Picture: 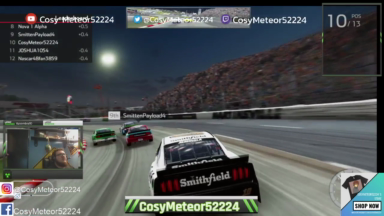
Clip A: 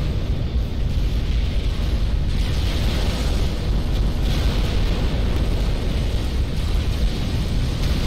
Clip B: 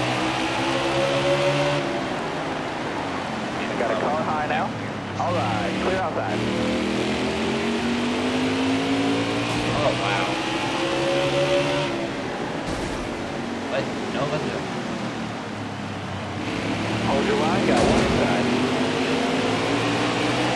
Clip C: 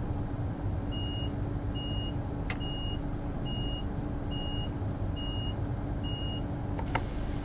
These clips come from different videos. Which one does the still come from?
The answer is B